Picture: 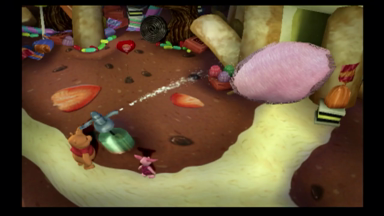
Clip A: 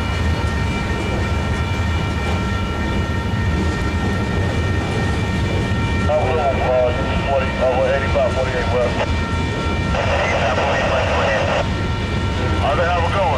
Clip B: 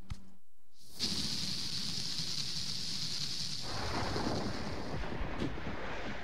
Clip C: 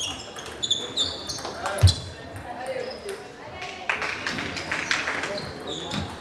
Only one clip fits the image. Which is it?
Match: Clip B